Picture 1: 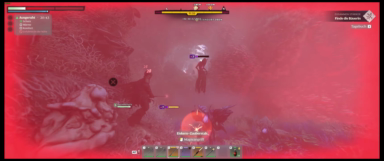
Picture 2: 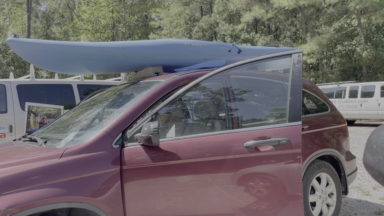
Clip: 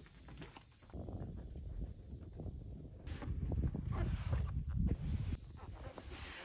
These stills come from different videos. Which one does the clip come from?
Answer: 2